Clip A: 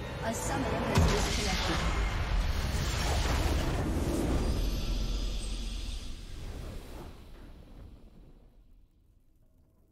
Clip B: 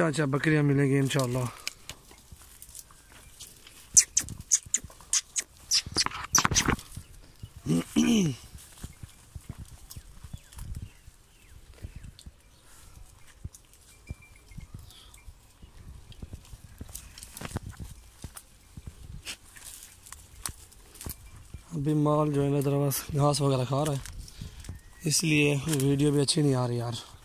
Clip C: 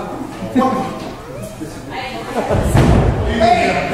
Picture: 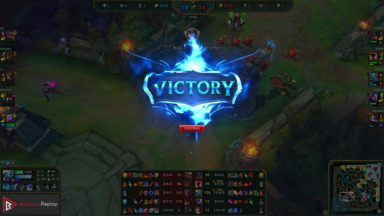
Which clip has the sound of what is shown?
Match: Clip A